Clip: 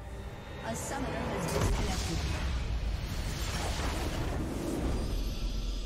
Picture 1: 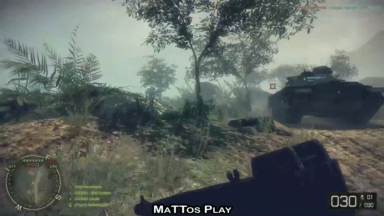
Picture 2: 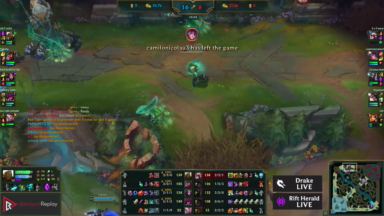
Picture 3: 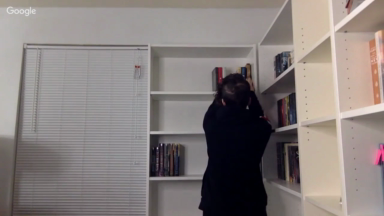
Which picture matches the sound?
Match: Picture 2